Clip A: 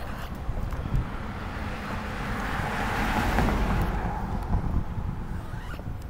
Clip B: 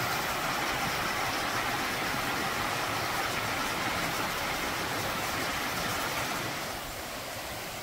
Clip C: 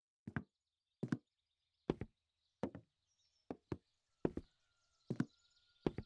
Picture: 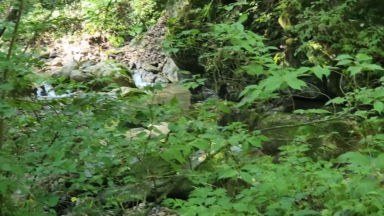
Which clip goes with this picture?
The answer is B